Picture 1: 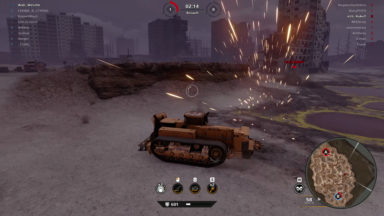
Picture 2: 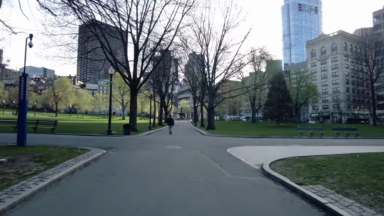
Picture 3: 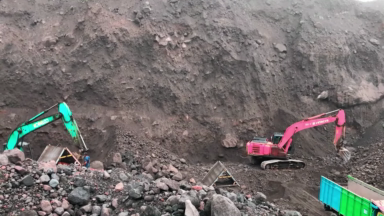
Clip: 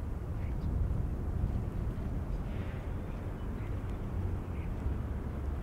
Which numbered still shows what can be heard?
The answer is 2